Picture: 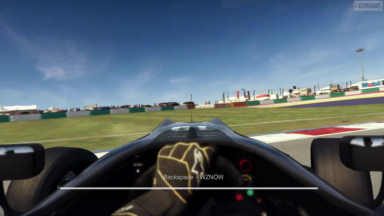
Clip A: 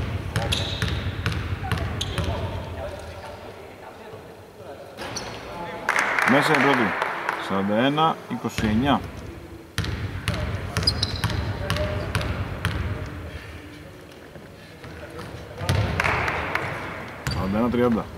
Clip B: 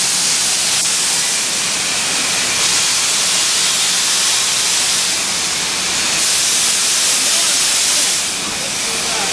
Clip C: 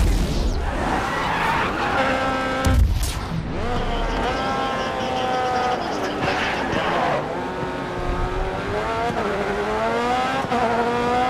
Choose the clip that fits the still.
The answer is C